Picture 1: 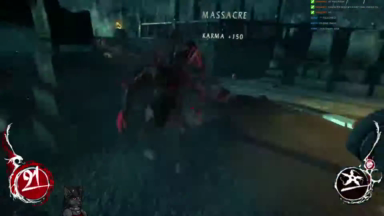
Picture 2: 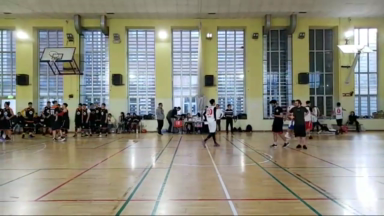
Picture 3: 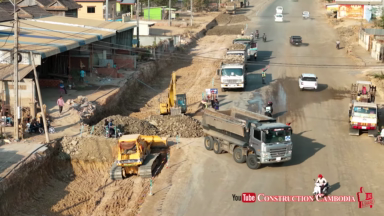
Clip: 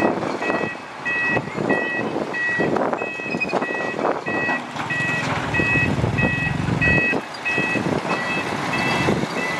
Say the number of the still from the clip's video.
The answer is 3